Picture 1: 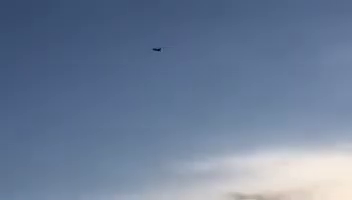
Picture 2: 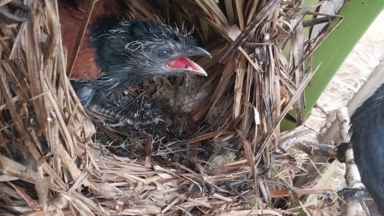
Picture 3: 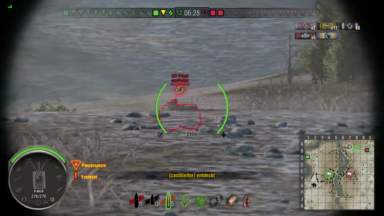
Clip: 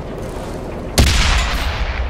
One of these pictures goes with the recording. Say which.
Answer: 3